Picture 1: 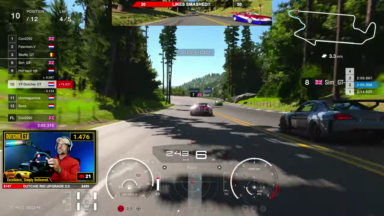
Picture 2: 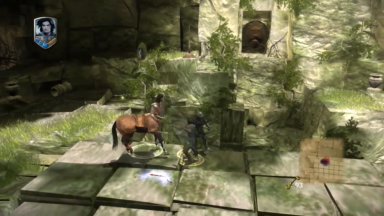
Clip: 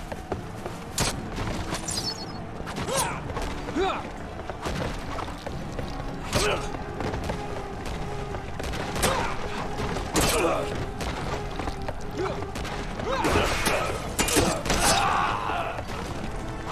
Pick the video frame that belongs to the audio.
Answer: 2